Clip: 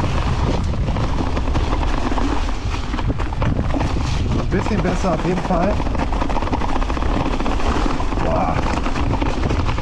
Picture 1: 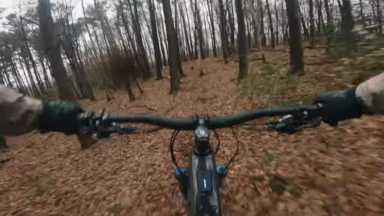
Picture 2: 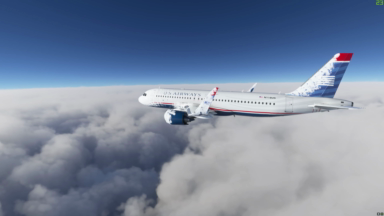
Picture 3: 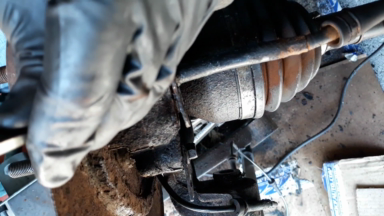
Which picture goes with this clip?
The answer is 1